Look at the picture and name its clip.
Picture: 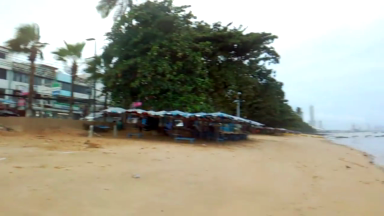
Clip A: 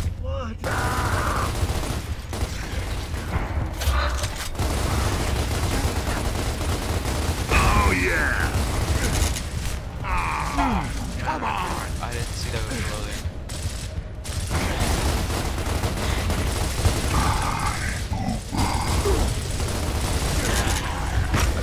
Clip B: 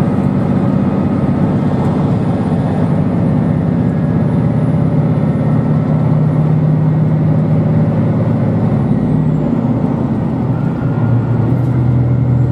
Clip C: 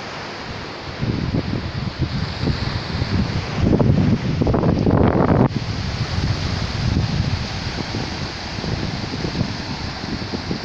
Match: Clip C